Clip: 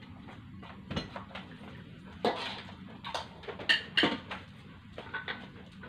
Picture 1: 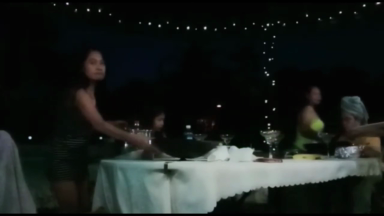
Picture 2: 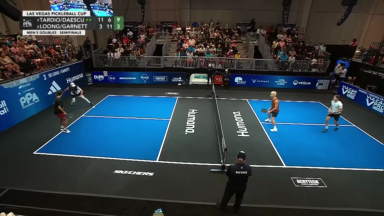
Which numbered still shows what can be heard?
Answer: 1